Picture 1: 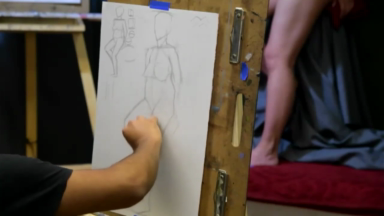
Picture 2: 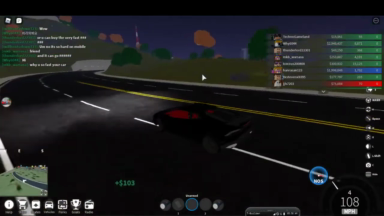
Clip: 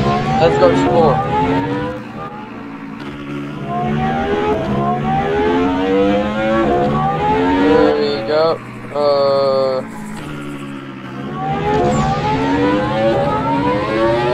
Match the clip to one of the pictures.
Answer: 2